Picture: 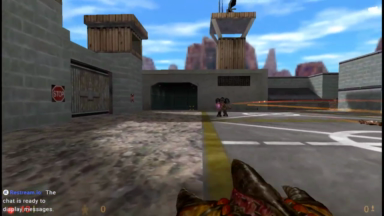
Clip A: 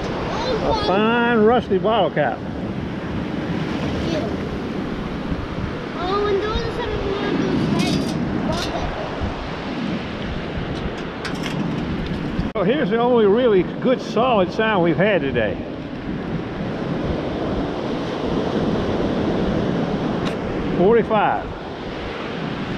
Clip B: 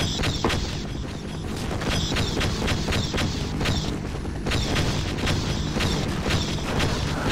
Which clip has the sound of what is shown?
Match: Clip B